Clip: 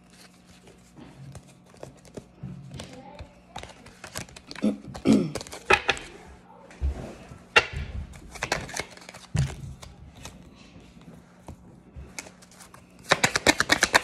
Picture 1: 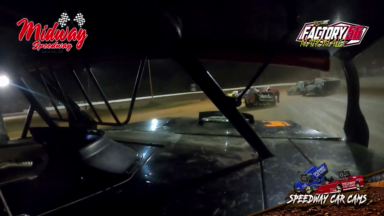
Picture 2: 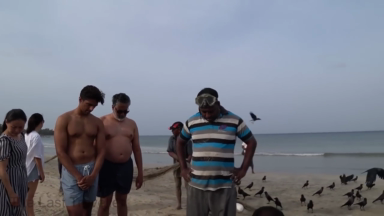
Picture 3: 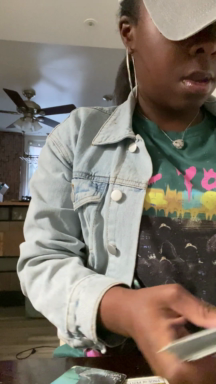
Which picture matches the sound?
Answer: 3